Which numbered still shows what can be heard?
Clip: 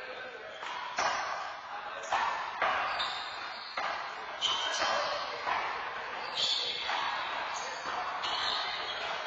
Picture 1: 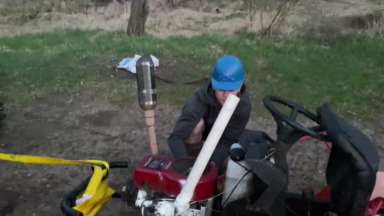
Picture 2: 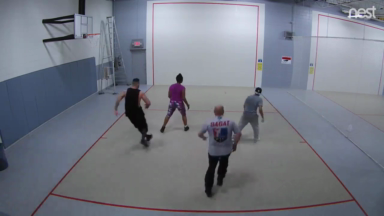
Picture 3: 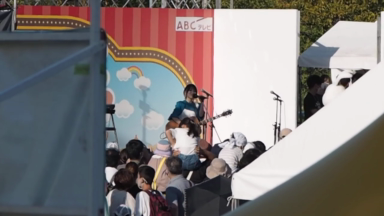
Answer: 2